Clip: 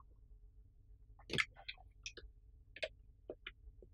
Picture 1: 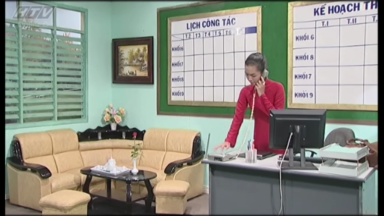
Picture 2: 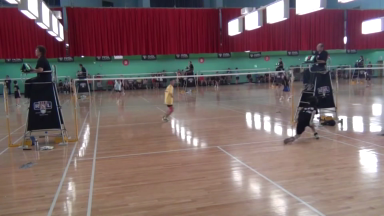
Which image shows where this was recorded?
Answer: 1